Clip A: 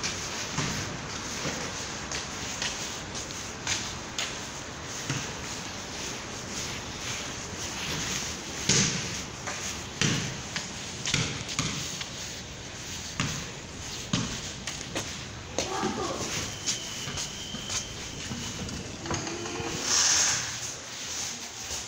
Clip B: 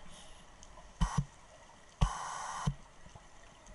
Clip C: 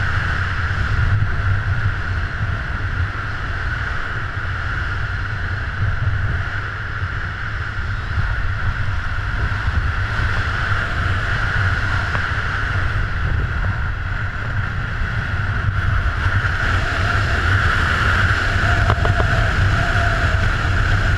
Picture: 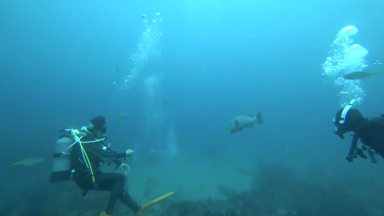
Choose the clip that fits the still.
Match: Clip B